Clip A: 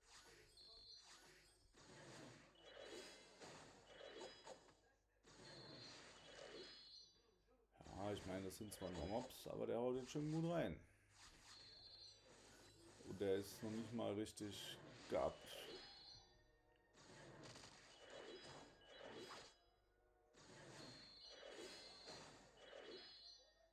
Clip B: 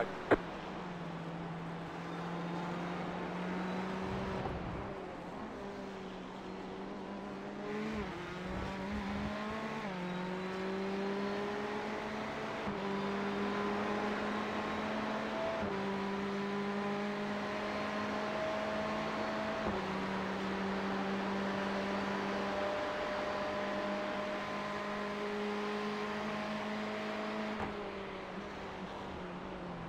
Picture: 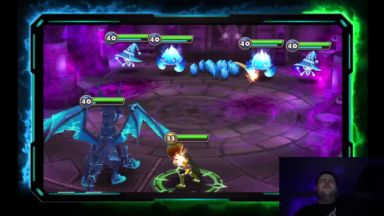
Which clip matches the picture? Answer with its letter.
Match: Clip A